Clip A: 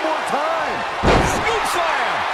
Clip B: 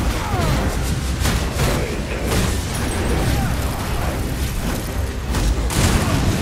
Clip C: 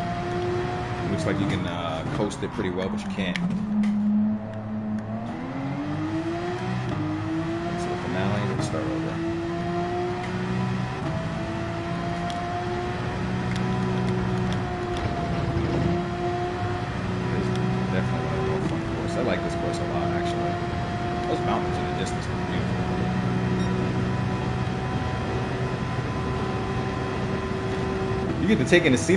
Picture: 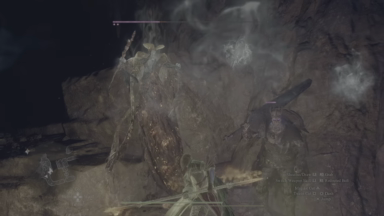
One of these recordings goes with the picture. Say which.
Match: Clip B